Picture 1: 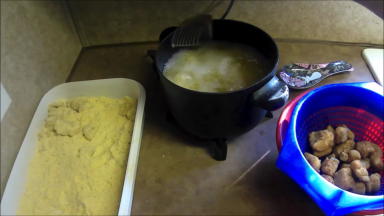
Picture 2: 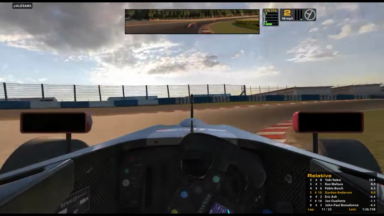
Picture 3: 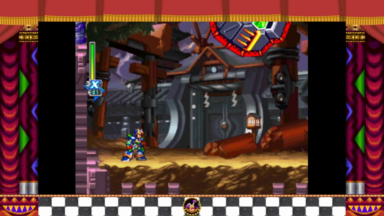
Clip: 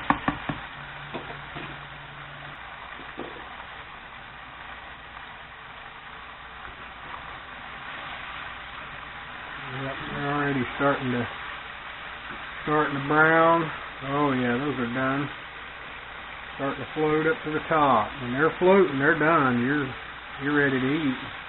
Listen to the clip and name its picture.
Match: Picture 1